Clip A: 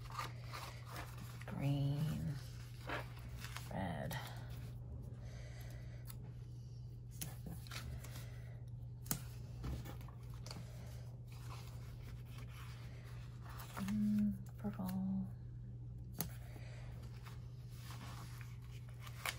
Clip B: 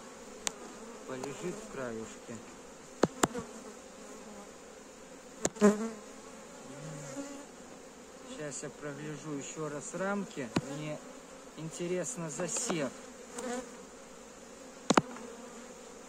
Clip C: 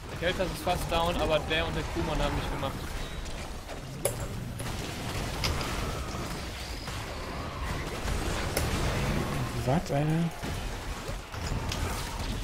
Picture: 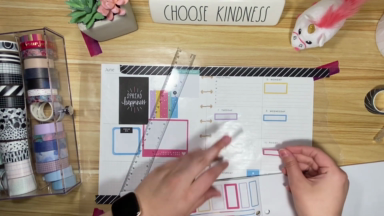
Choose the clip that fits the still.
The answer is A